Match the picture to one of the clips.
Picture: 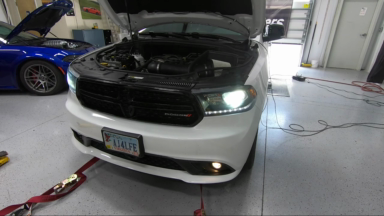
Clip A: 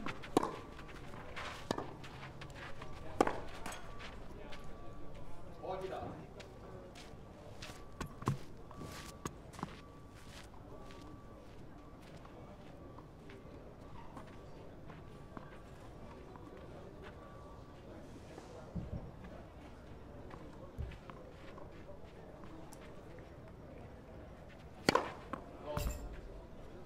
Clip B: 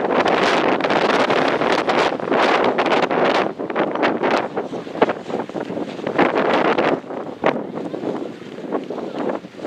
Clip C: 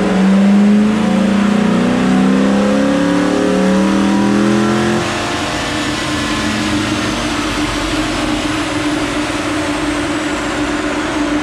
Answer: C